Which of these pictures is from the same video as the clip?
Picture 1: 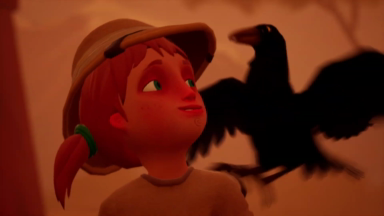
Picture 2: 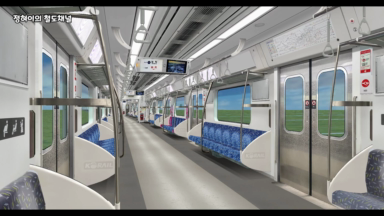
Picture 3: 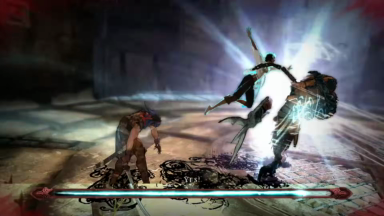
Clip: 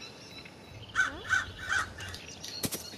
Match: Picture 1